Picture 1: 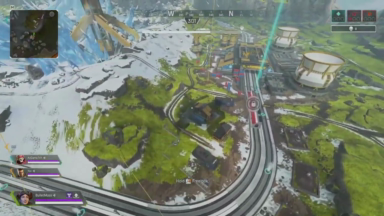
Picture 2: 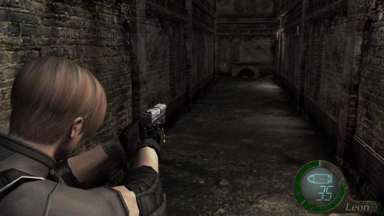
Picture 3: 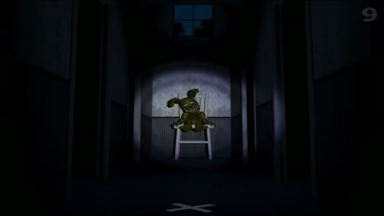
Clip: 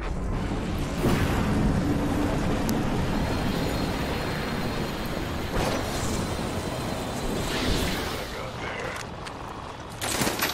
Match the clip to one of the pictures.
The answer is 1